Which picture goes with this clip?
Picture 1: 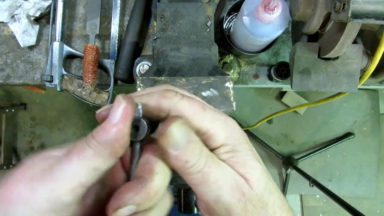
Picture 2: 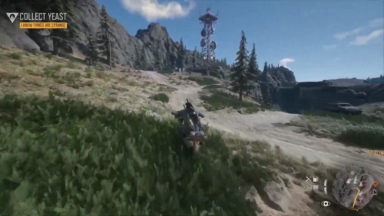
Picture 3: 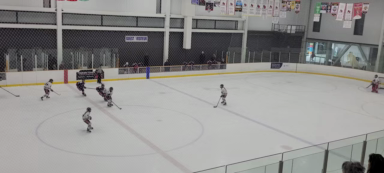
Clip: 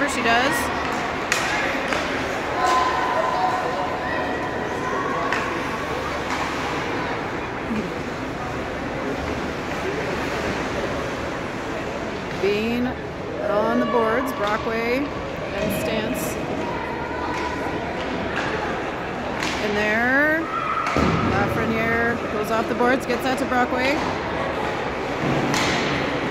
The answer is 3